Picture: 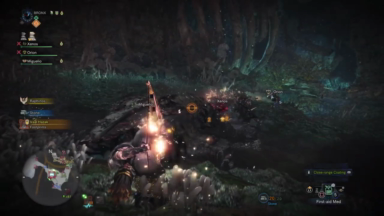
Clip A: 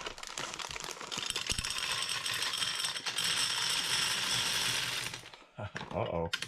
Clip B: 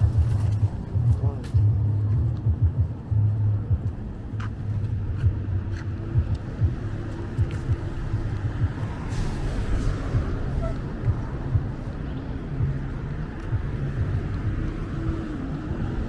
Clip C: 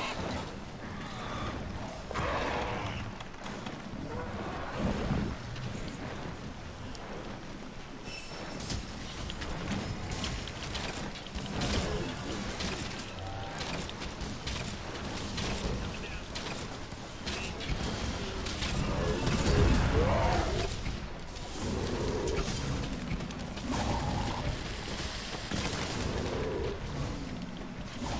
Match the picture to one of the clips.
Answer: C